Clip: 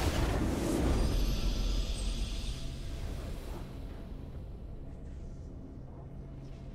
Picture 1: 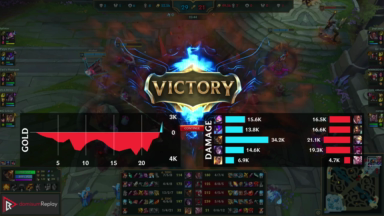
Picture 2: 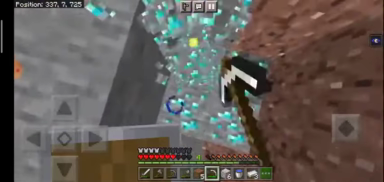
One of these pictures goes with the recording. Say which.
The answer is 1